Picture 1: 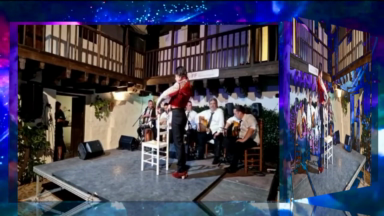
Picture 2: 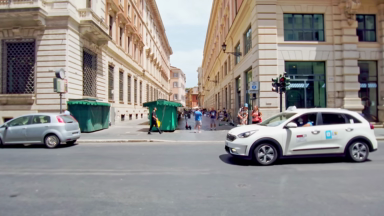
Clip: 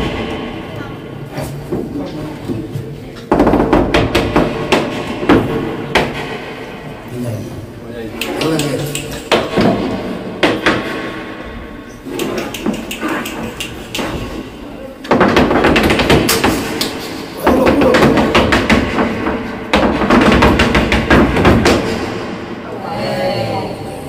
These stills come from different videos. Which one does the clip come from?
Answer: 1